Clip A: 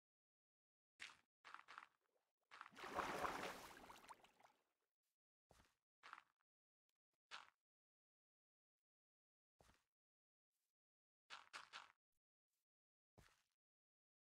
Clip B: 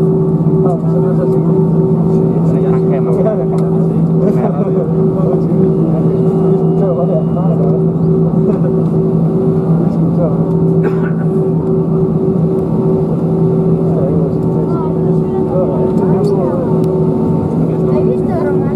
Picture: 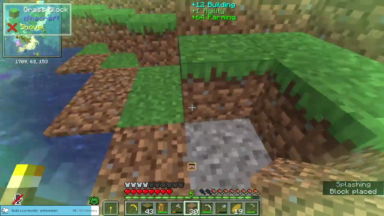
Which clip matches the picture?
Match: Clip A